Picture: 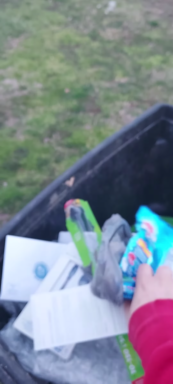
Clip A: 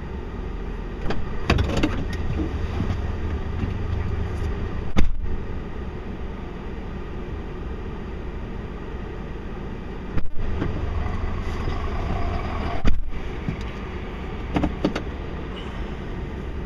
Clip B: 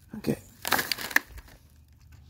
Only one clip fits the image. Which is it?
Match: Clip B